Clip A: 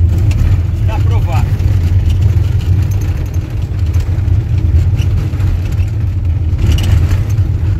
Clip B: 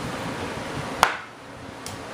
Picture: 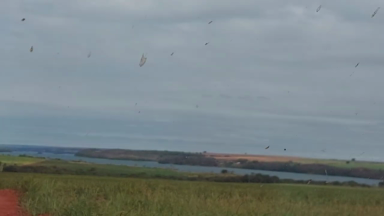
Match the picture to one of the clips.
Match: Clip A